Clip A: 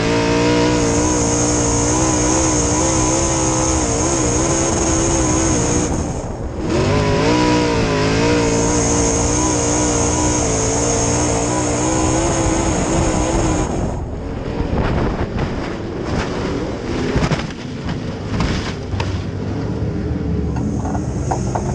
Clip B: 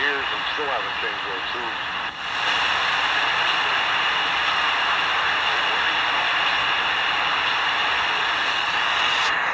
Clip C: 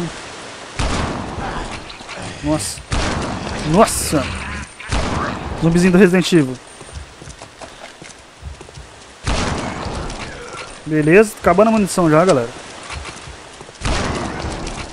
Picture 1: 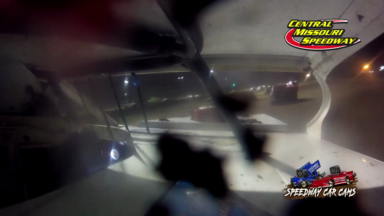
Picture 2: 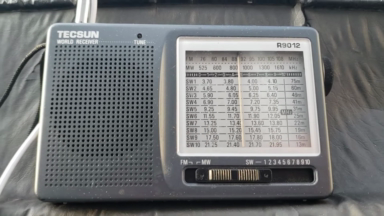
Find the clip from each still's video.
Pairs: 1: A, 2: B